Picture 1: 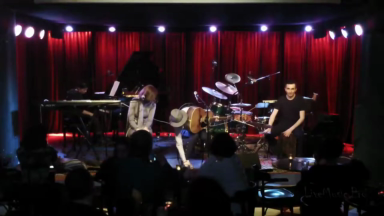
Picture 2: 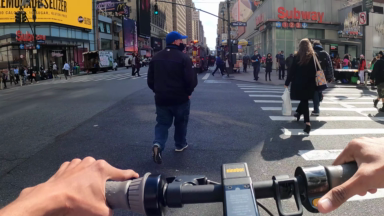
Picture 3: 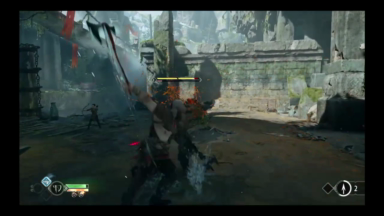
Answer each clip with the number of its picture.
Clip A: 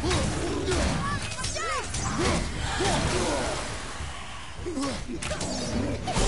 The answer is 3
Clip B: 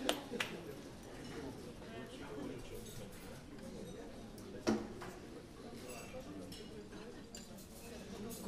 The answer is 1